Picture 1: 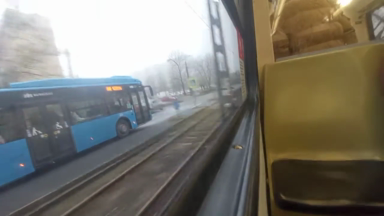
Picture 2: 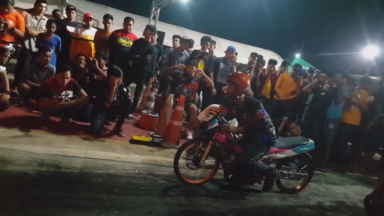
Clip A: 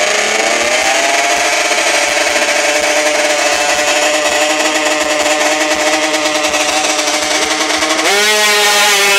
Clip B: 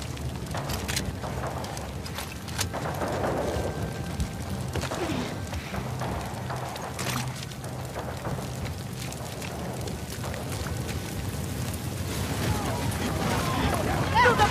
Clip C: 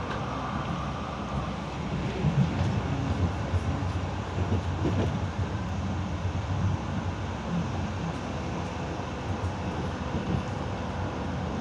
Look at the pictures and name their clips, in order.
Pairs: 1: C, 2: A